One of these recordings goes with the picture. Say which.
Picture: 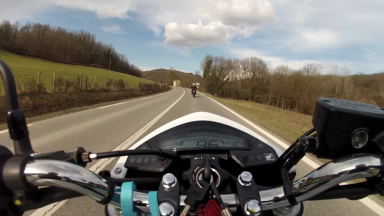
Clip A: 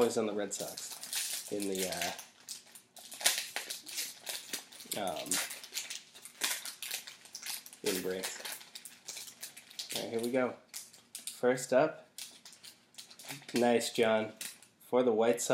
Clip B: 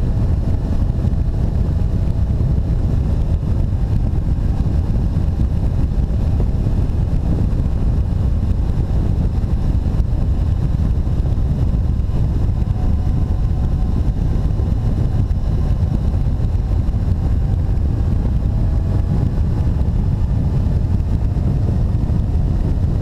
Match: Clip B